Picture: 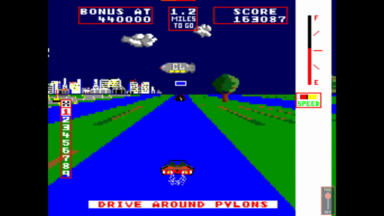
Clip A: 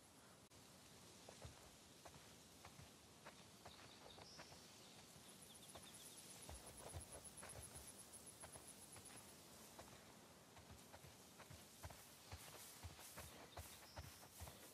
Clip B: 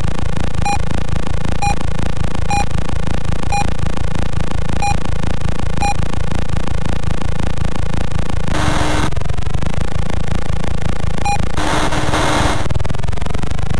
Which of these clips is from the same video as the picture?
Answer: B